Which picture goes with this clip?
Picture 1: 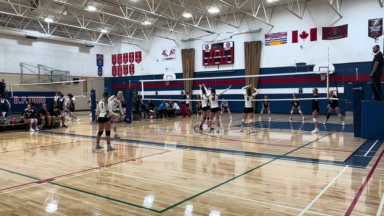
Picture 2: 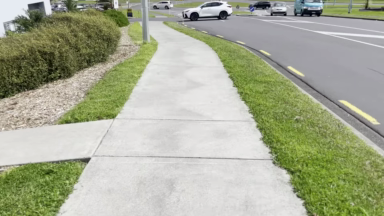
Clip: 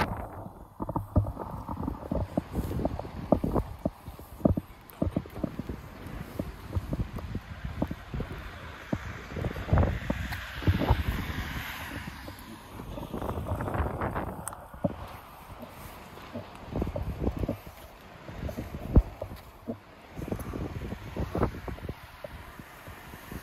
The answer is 2